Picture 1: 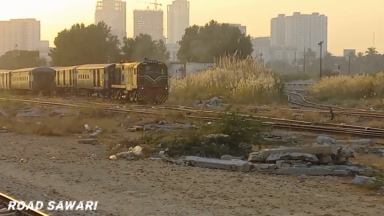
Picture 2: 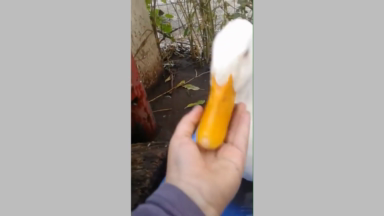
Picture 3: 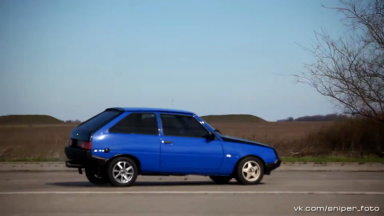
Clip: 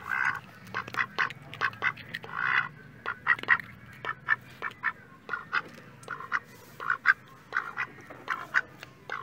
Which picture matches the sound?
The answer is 2